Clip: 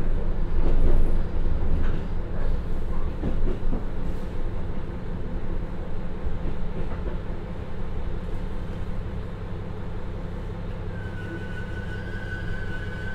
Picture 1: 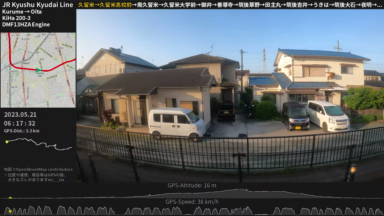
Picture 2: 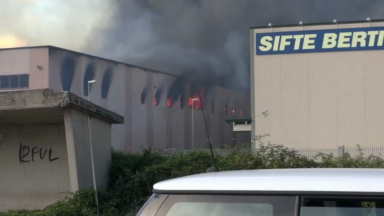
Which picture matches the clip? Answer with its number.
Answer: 1